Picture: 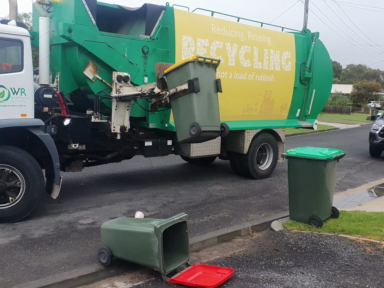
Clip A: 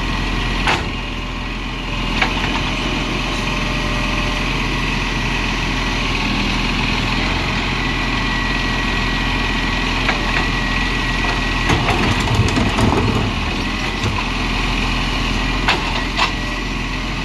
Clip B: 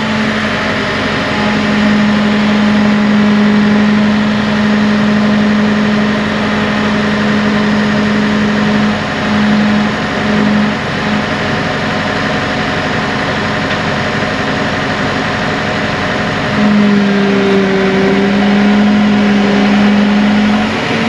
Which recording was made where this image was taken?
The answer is A